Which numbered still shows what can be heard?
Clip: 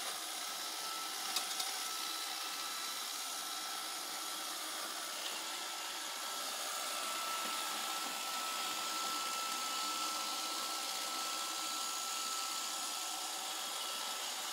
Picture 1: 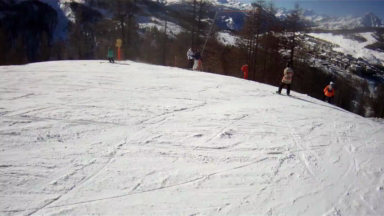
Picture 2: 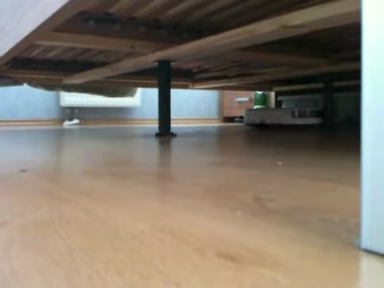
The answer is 2